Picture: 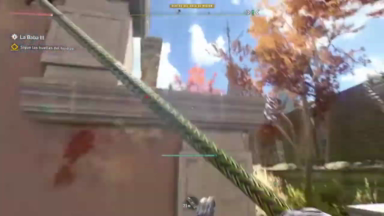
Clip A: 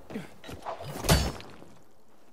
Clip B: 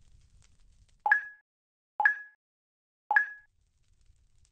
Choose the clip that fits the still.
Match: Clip A